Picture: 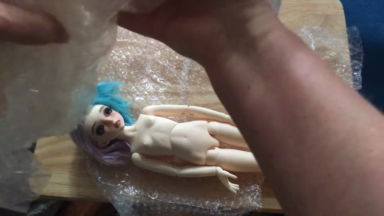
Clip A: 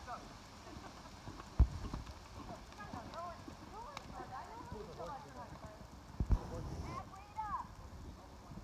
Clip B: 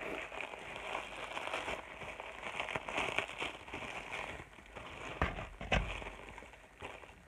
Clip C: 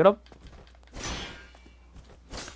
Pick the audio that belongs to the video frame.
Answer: B